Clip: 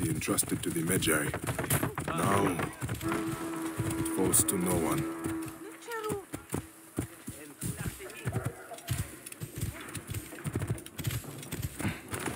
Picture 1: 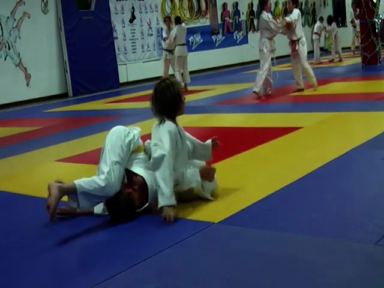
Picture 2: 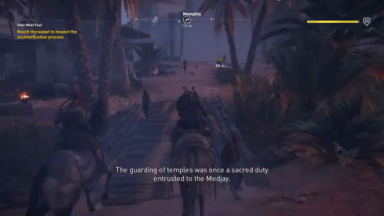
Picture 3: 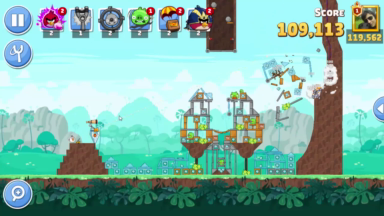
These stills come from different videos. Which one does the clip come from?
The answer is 2